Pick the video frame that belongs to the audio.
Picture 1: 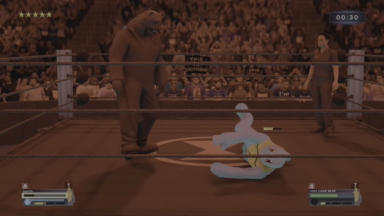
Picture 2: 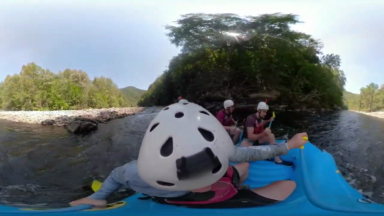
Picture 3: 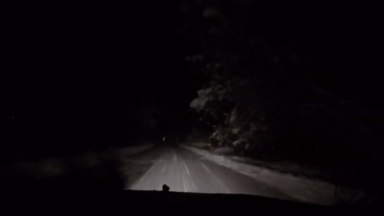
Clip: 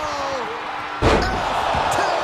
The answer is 1